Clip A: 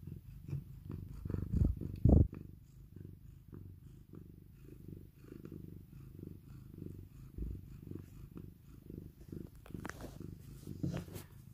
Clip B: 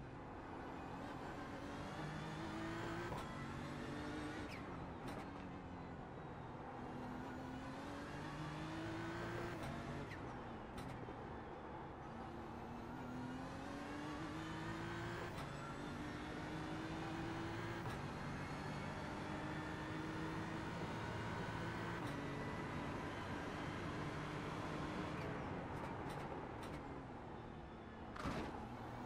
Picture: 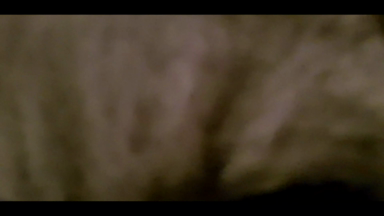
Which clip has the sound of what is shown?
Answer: A